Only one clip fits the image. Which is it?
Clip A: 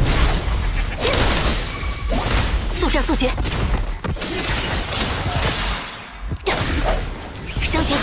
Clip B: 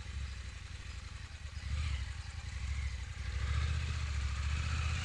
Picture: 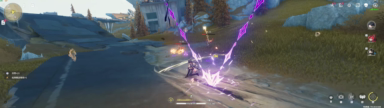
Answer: A